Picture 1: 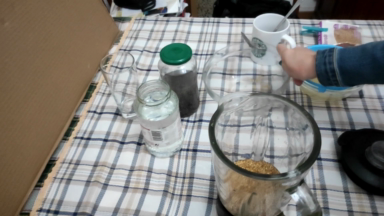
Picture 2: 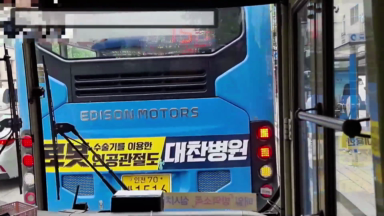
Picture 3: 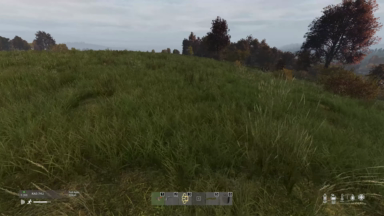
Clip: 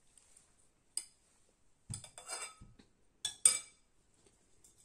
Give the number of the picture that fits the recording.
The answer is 1